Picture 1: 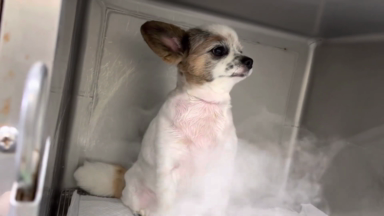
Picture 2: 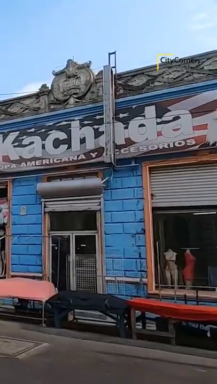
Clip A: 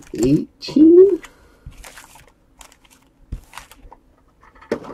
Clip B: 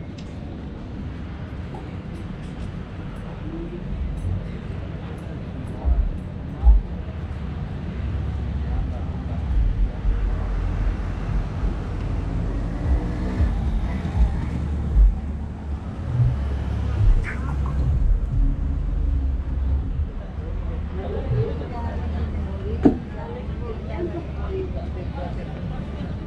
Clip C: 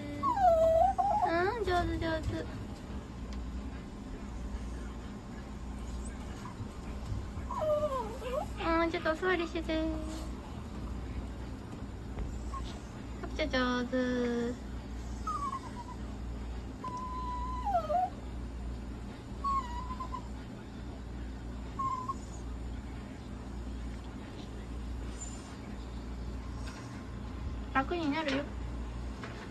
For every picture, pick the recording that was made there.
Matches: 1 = C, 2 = B